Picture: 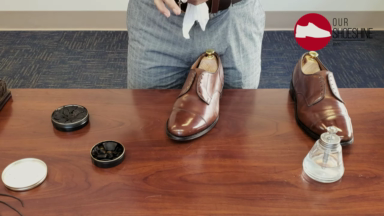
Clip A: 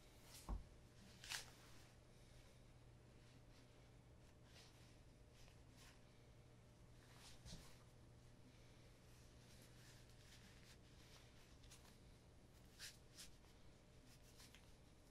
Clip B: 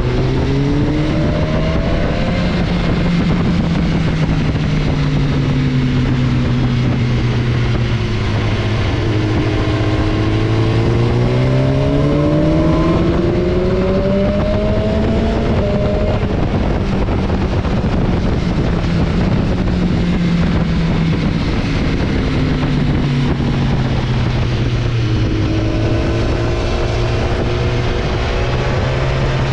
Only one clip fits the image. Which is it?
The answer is A